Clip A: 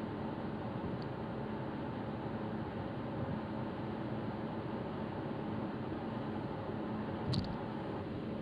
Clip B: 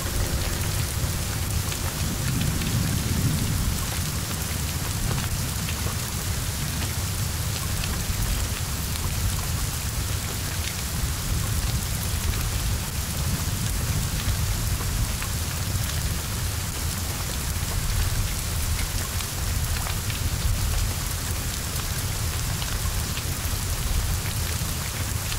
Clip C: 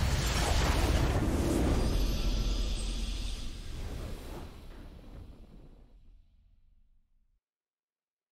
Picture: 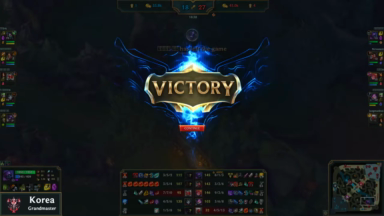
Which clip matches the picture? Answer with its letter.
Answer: C